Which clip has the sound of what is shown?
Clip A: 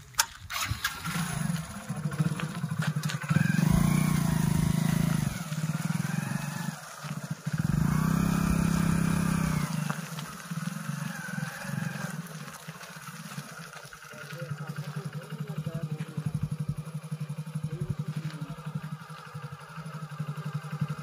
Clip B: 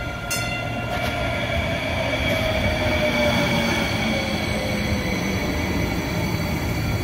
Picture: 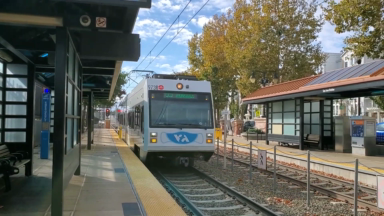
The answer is B